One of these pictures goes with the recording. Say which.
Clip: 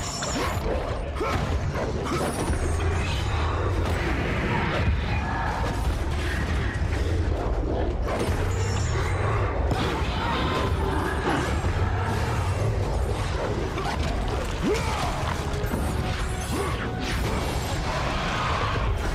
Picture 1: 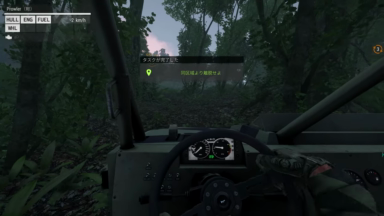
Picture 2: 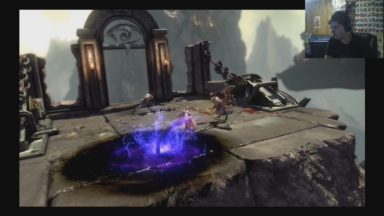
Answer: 2